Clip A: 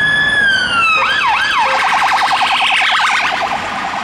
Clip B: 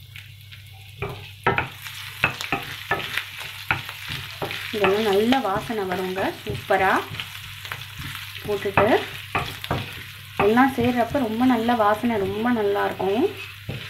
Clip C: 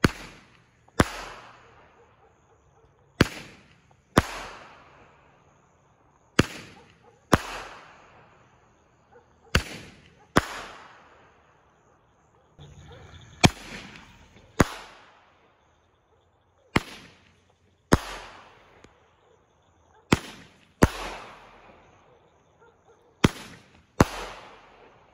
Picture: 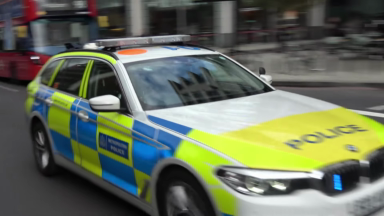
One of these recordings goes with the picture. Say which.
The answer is A